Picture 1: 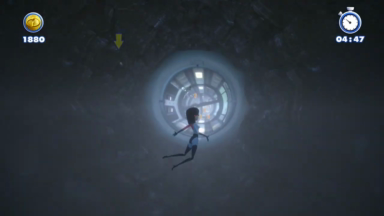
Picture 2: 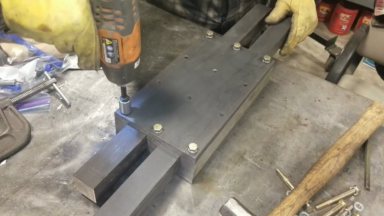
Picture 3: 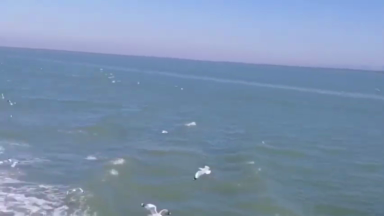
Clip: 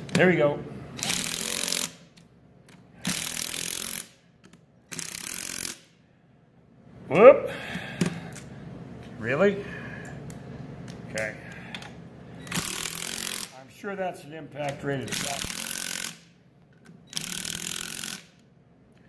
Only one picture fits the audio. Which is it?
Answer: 2